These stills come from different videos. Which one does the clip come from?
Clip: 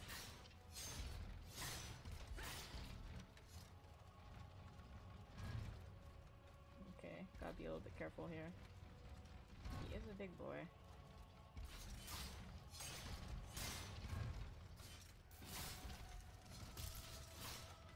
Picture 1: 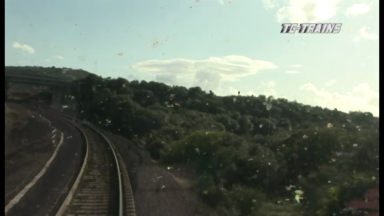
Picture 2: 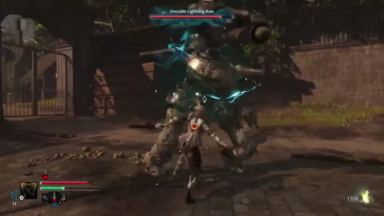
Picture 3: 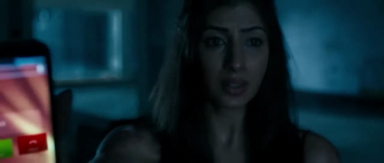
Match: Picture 2